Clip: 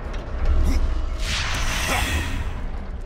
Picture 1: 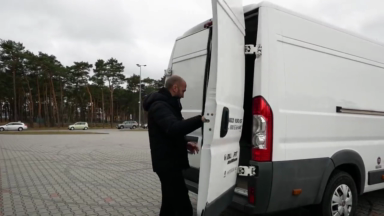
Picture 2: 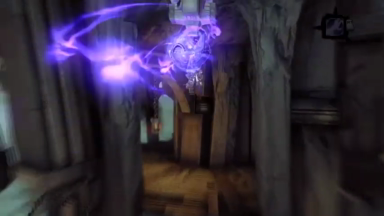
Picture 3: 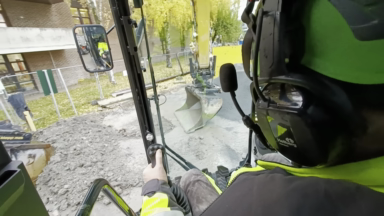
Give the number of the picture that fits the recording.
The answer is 2